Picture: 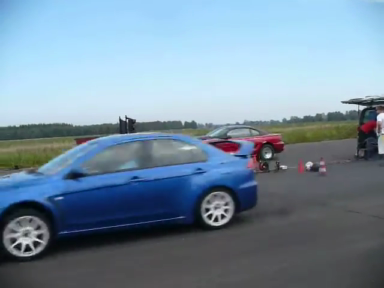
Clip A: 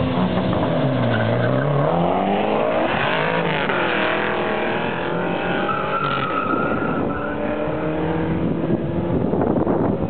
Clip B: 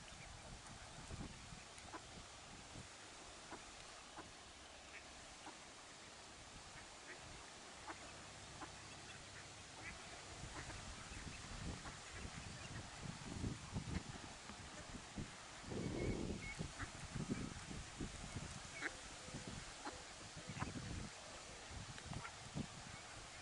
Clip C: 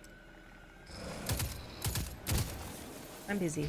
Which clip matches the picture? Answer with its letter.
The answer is A